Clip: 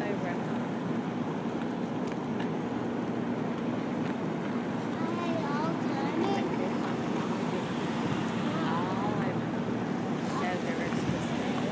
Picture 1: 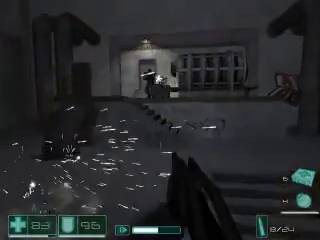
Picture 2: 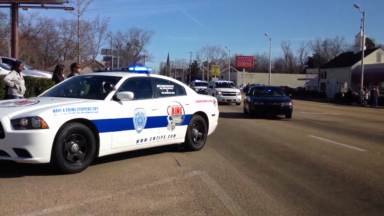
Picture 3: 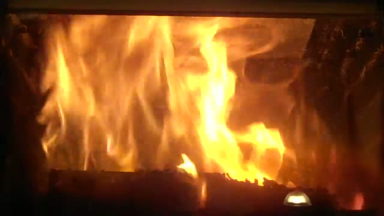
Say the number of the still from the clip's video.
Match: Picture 2